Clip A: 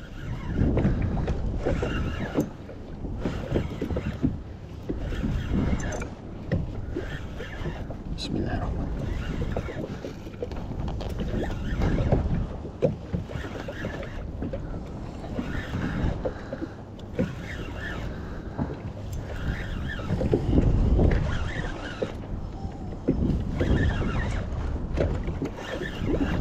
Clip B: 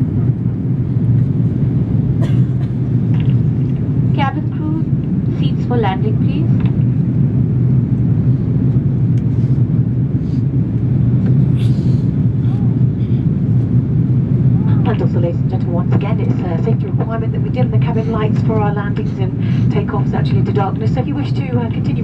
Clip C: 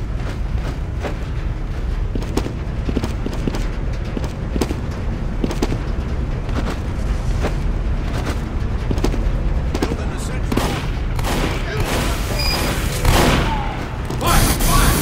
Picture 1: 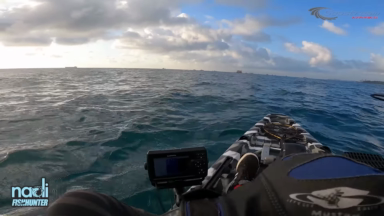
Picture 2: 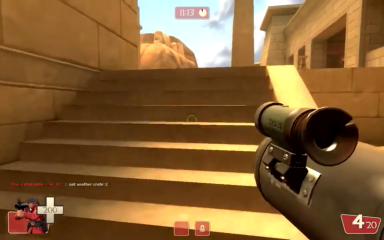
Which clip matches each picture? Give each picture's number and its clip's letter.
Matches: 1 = A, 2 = C